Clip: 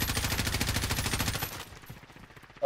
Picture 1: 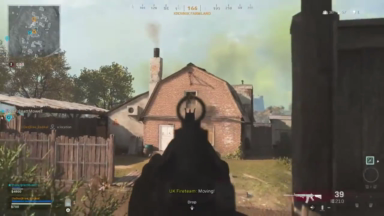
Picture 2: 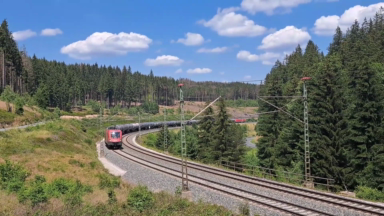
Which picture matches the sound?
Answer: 1